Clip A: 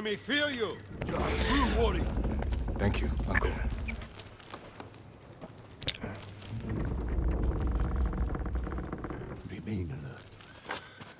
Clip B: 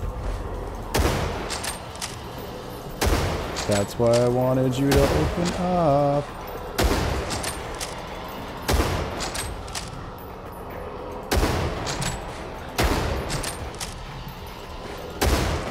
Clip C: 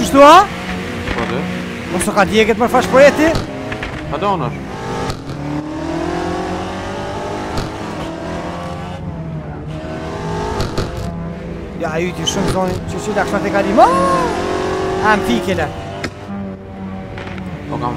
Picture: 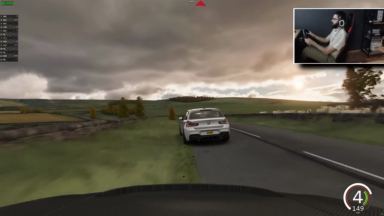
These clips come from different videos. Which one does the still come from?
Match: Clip C